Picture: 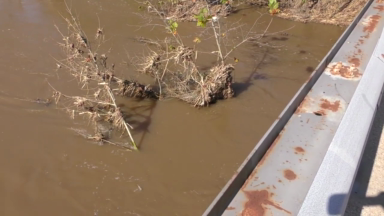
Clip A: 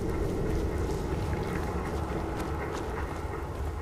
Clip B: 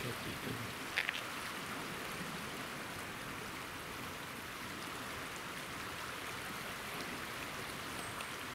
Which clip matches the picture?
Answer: B